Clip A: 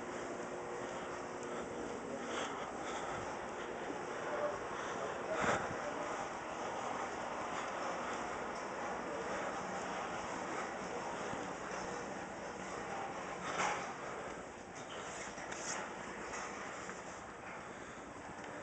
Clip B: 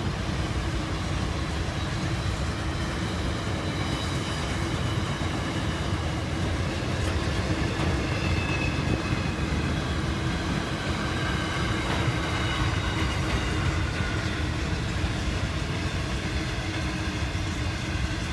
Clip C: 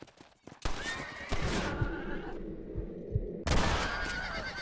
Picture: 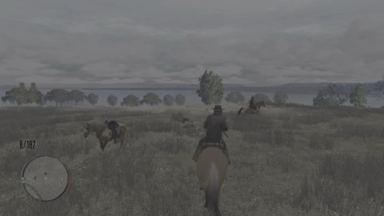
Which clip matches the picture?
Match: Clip C